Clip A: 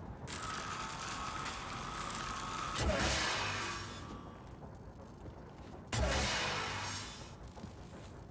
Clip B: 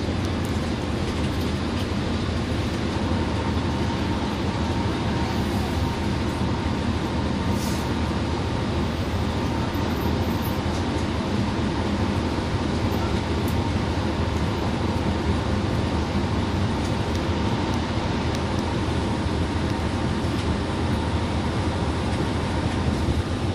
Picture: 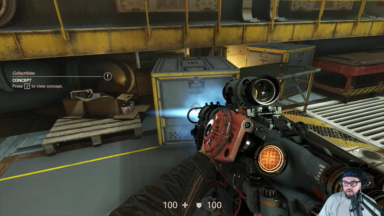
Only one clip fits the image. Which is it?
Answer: A